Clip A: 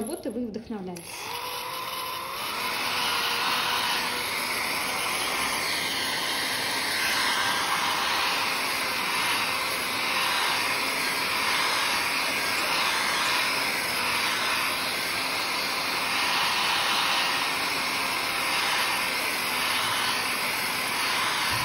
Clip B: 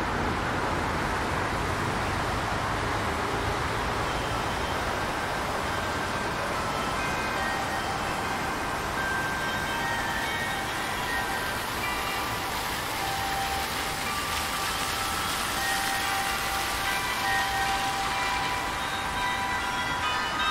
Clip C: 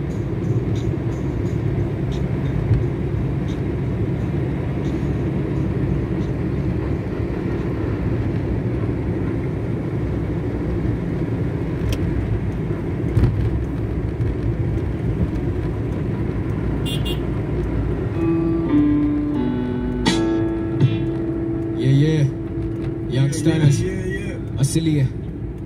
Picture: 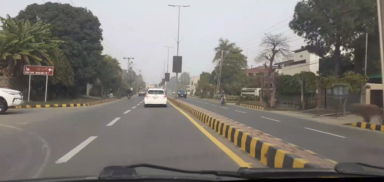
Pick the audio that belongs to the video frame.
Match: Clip C